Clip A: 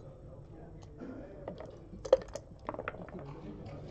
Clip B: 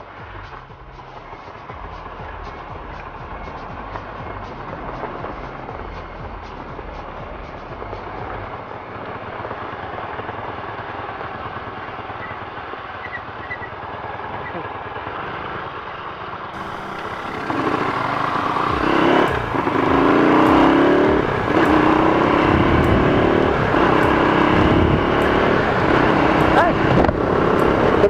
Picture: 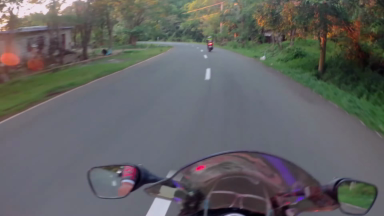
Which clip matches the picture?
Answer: B